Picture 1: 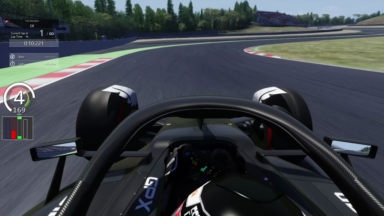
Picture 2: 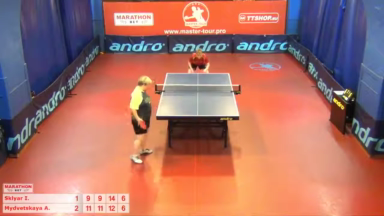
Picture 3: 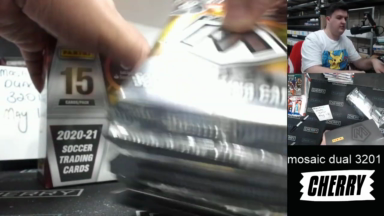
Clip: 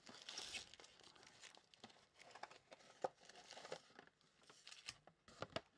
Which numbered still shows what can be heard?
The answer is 3